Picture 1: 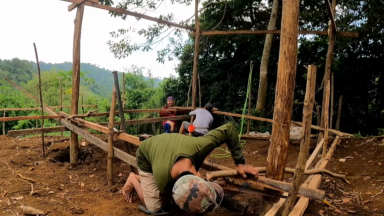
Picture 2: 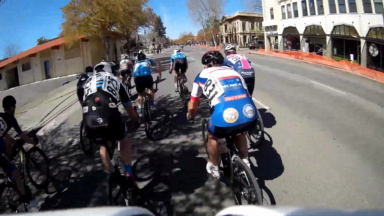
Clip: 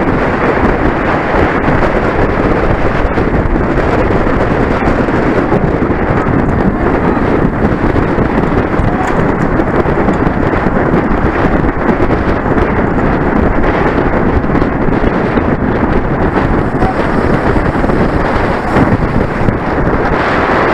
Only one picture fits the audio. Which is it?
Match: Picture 2